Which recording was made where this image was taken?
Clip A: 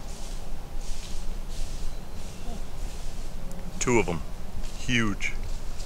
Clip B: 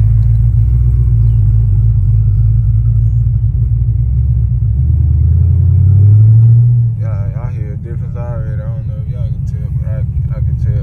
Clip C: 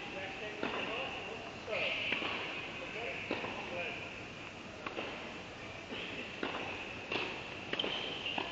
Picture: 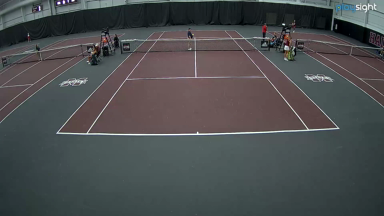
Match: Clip C